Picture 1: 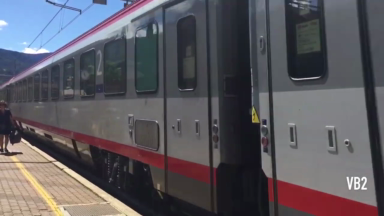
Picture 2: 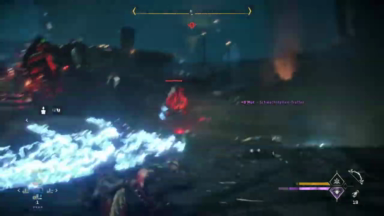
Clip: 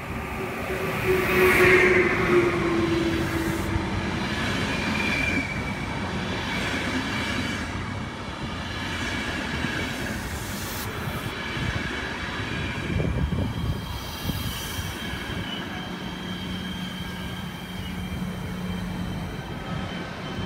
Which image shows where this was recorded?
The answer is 1